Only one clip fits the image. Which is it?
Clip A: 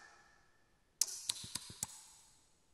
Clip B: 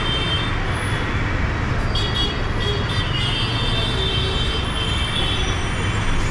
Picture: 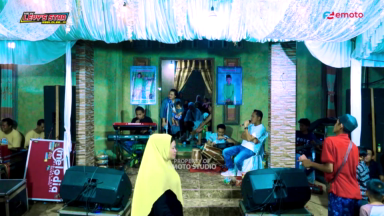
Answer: A